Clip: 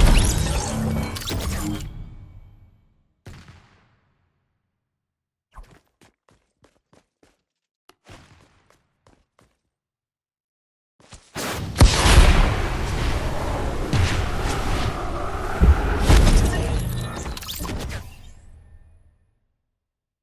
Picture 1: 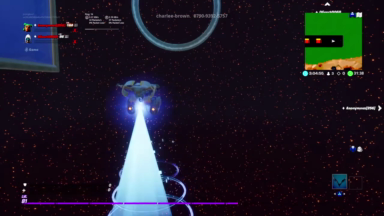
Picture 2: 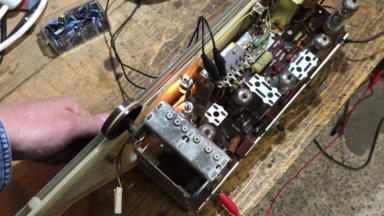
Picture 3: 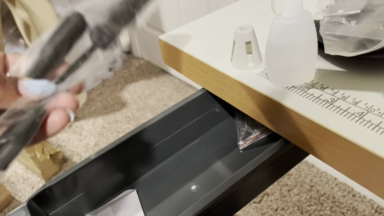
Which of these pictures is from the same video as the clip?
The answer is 1